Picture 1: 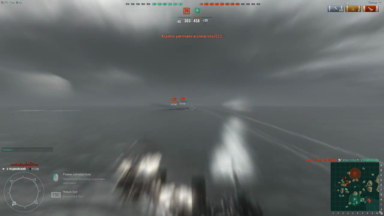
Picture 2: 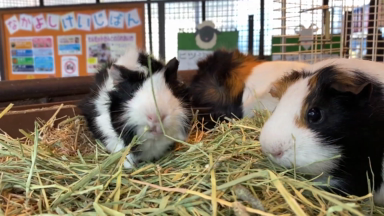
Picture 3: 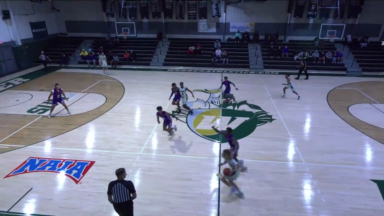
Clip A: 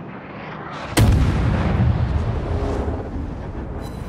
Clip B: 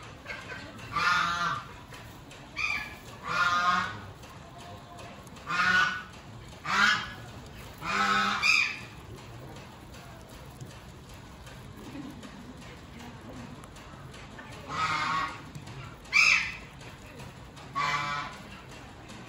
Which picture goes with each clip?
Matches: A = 1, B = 2